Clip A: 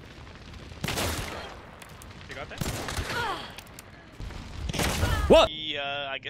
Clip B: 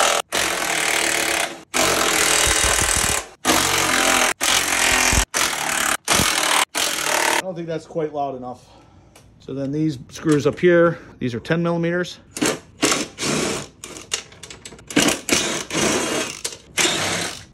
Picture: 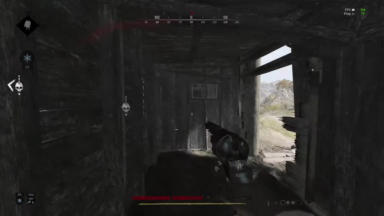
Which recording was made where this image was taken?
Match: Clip A